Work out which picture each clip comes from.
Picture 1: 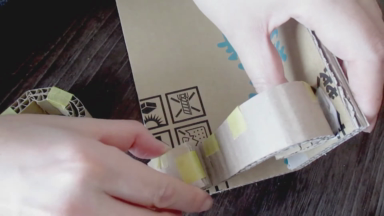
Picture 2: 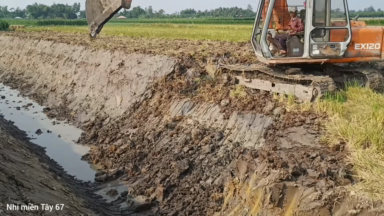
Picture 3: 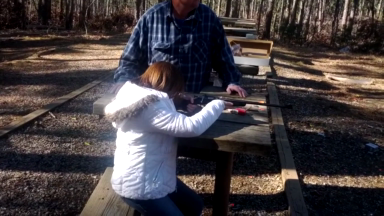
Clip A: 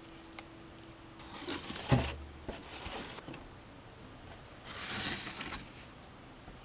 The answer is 1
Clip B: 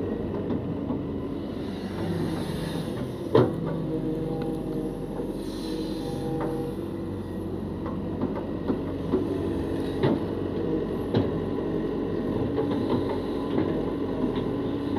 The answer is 2